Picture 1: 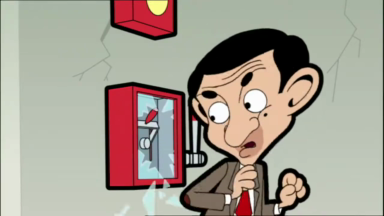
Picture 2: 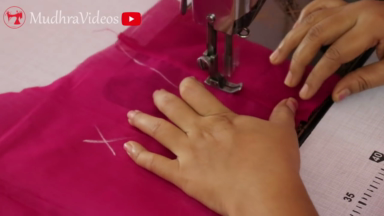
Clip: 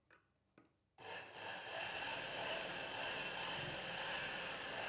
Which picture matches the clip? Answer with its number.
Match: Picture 2